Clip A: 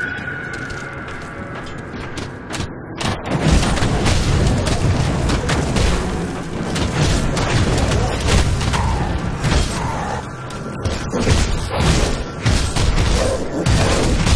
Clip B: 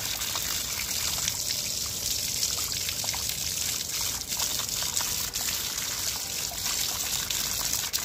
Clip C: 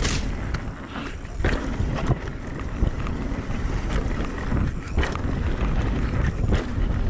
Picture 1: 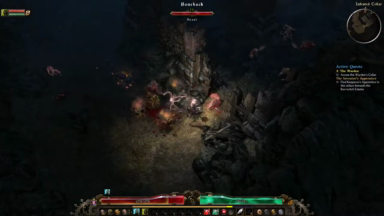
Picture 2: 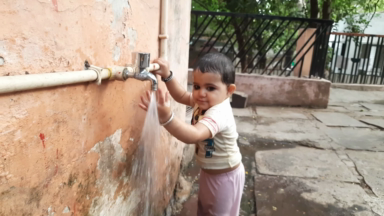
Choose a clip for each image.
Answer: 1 A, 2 B